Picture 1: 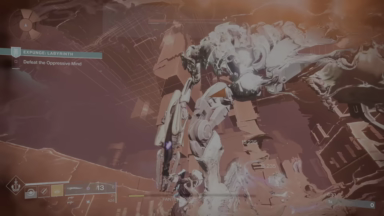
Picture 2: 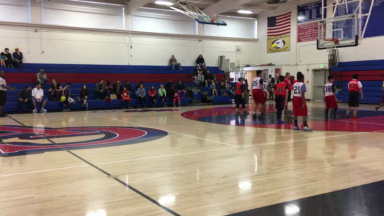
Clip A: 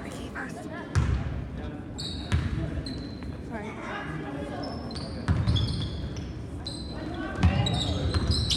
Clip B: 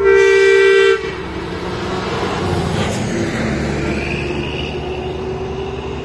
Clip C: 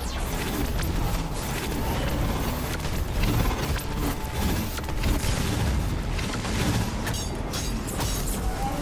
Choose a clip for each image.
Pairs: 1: C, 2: A